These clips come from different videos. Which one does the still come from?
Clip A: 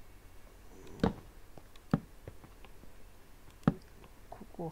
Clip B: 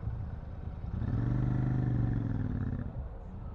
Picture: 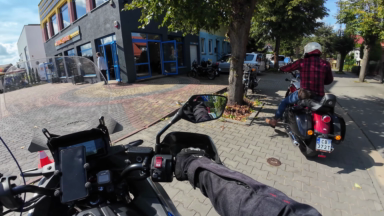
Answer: B